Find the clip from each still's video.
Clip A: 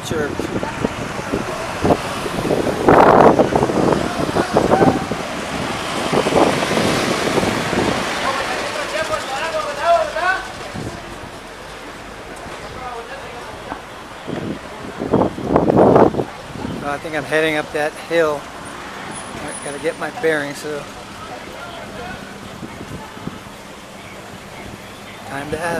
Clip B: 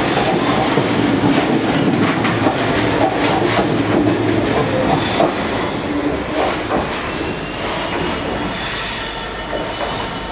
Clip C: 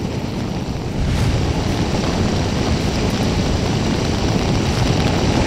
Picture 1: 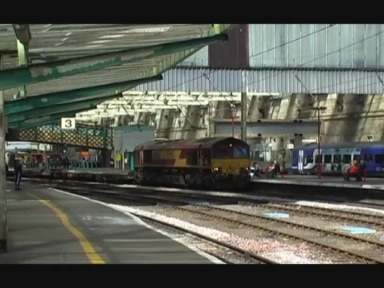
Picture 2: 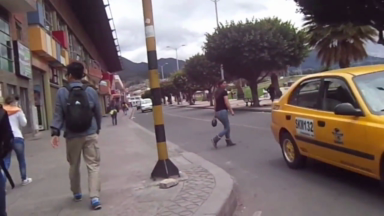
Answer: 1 B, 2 A